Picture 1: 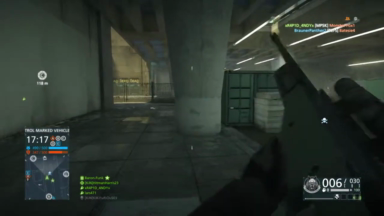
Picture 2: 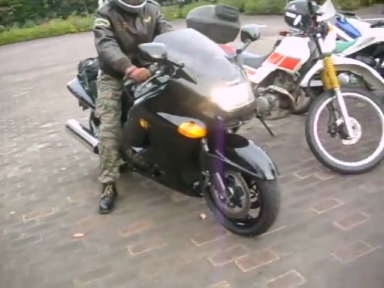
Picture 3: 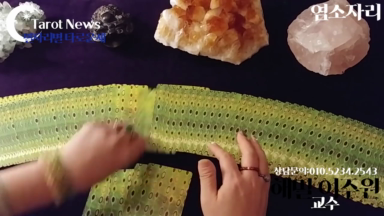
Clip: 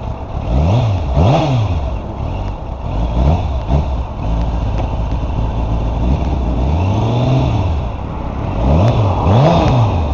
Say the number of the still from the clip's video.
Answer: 2